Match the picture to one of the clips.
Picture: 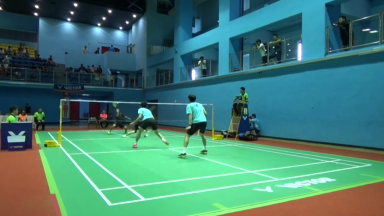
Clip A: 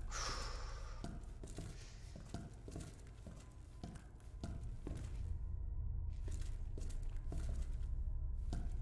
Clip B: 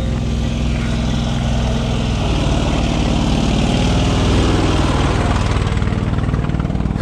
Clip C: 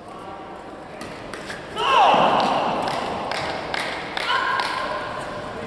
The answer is C